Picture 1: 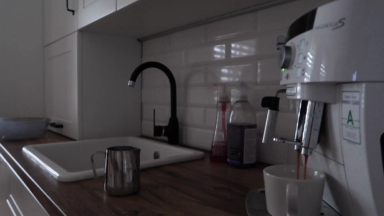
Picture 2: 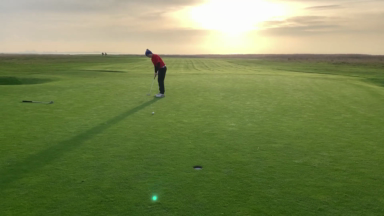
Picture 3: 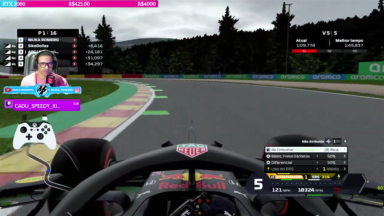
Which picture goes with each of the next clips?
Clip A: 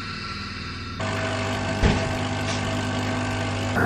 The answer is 1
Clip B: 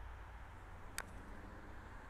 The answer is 2